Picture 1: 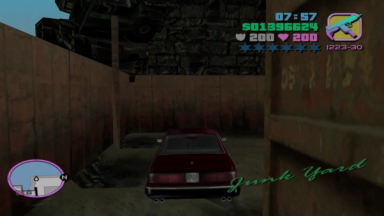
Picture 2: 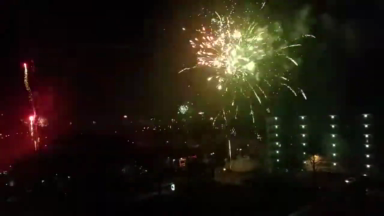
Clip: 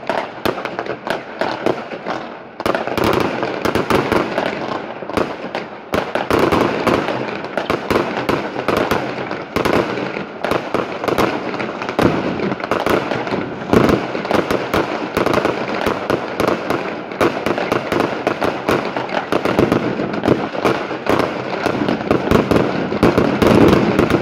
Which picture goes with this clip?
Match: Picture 2